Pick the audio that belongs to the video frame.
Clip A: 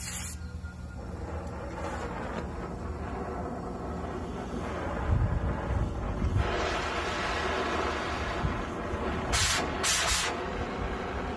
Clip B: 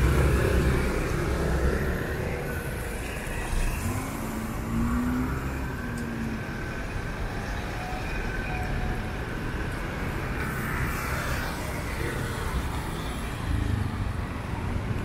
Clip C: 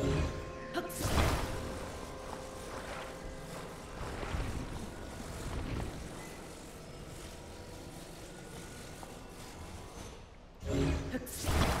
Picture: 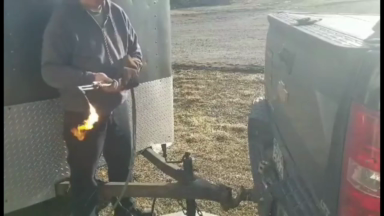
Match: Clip A